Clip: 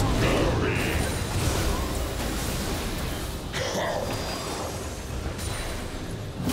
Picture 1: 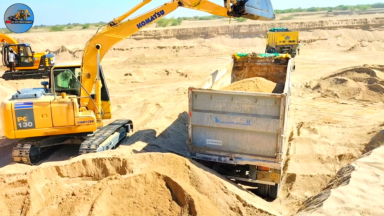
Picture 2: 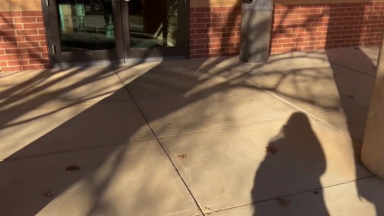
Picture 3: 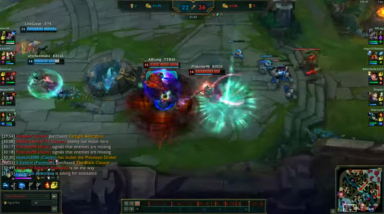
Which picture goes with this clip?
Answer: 3